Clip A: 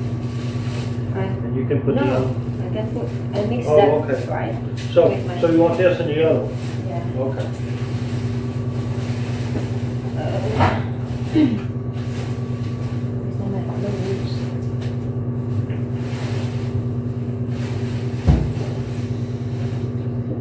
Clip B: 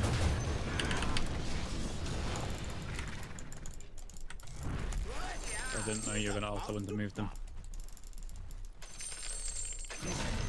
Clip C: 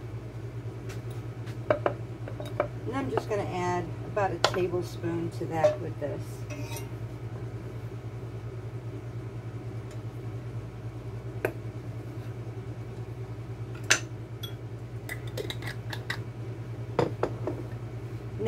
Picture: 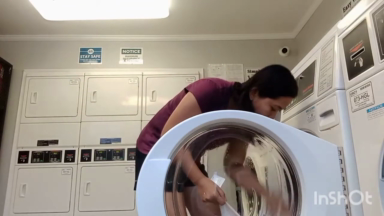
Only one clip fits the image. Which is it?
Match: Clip A